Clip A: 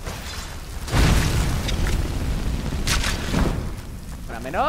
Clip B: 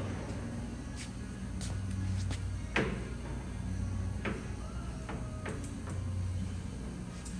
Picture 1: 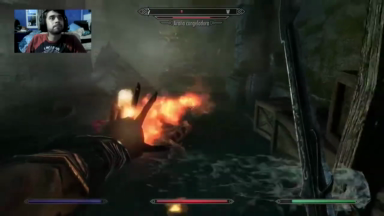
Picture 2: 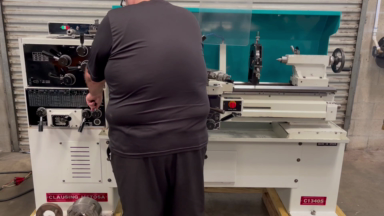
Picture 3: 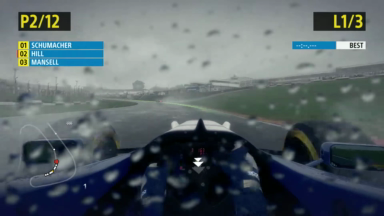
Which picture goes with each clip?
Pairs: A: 1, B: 2